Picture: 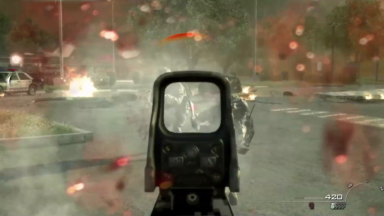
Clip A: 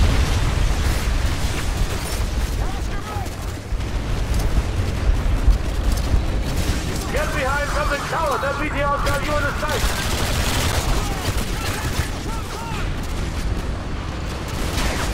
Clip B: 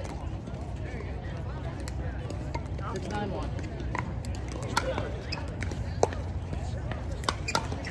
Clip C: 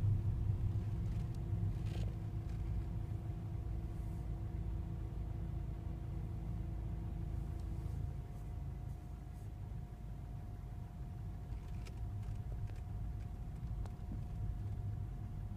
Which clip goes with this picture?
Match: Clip A